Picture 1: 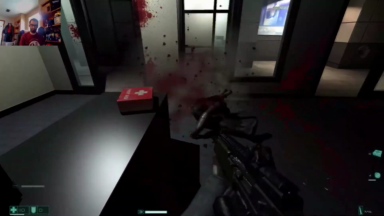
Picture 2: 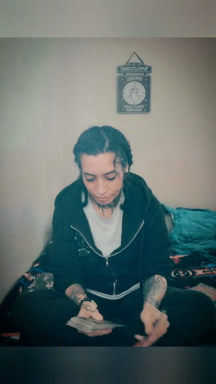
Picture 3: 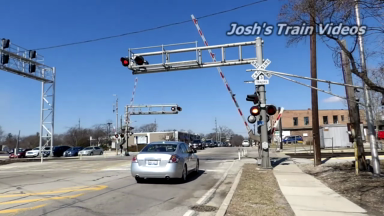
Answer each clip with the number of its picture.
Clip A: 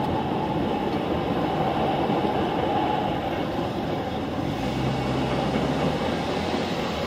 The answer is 3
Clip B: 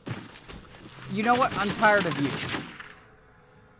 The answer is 1